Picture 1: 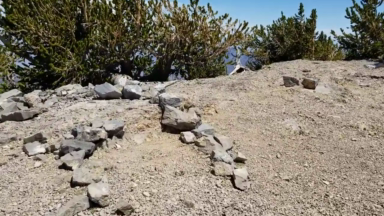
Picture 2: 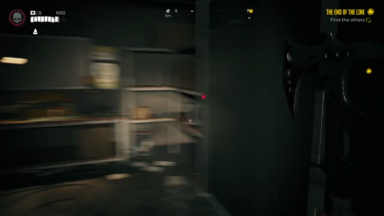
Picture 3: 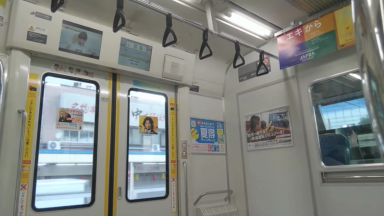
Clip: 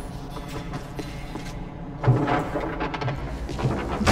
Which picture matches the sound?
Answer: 2